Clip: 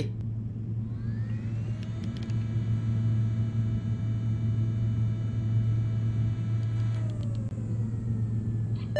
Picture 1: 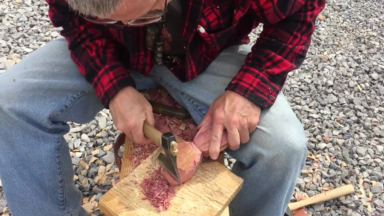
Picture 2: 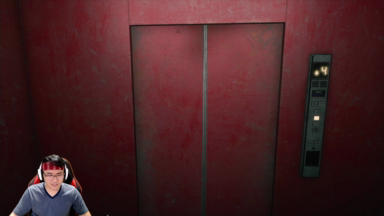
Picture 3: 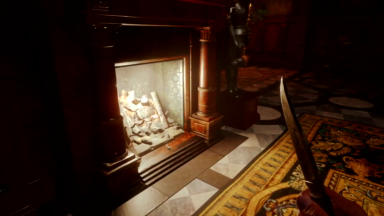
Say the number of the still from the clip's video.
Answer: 2